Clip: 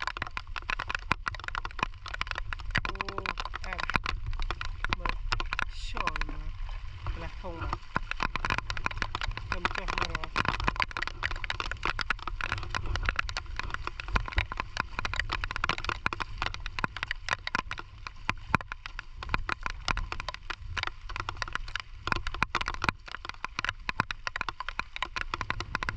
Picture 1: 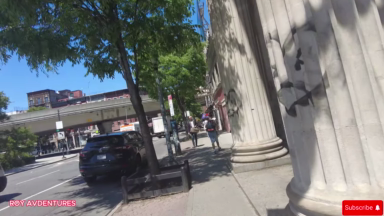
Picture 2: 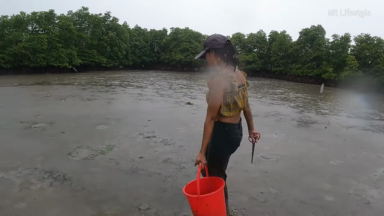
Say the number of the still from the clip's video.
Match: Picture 2